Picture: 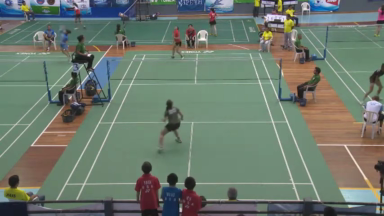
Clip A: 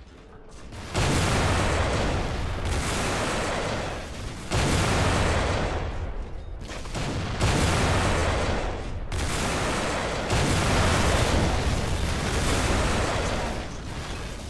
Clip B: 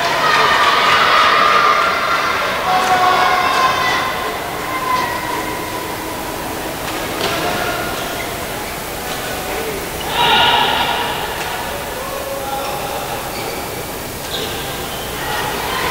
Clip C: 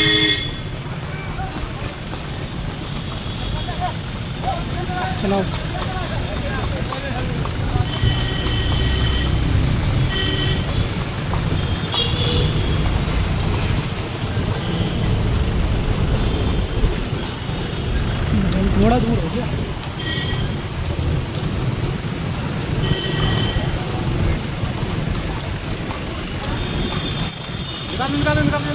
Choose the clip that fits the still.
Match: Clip B